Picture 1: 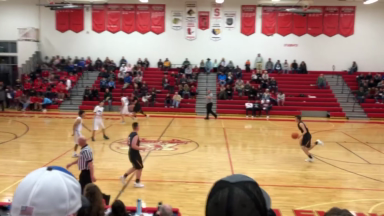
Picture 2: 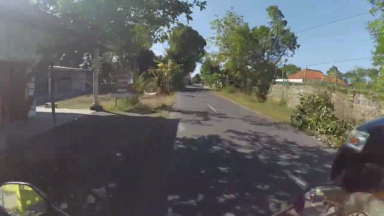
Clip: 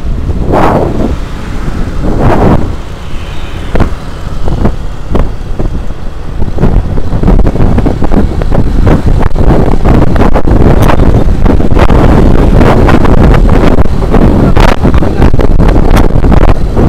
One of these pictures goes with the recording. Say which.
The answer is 2